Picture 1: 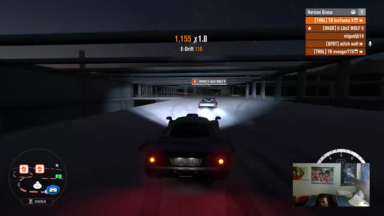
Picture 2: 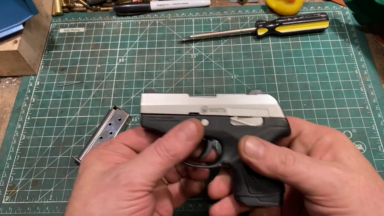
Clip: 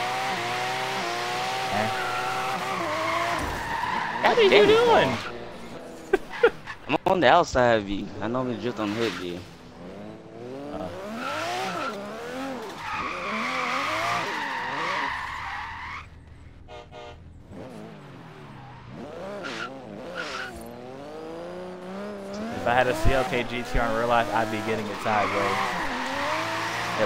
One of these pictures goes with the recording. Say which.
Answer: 1